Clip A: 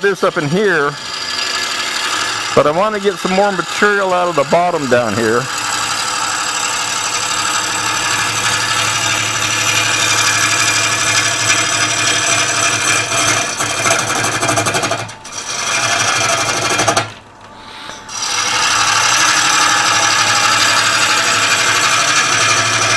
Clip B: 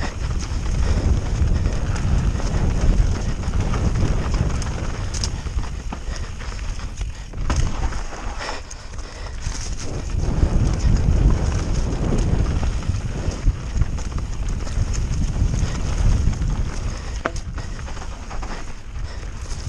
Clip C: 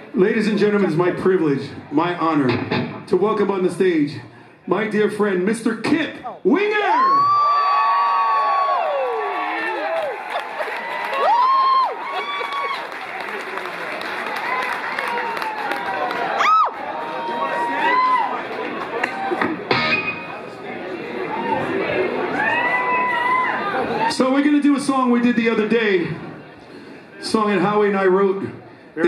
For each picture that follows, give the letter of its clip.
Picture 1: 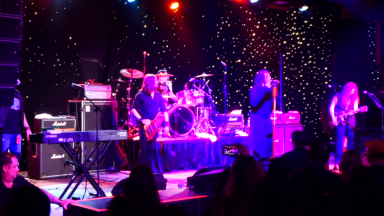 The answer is C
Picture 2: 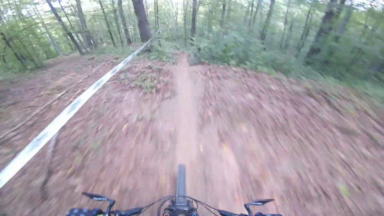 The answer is B